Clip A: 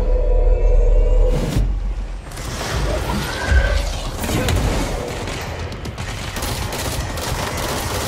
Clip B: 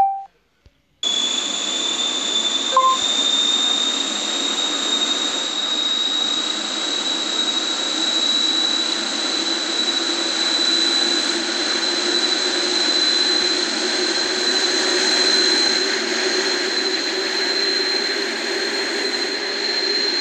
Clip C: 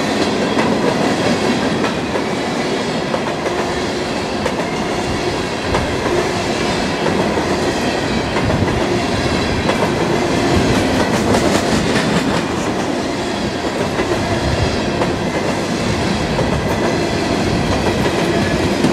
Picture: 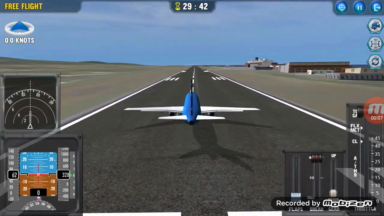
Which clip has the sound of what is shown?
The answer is B